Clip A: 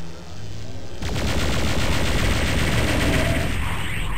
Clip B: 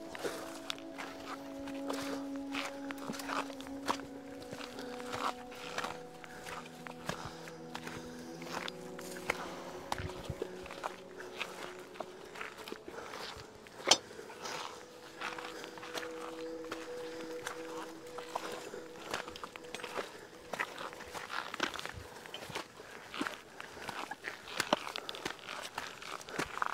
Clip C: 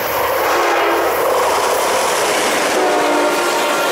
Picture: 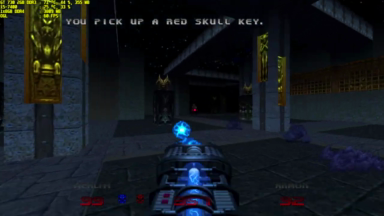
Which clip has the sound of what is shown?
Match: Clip A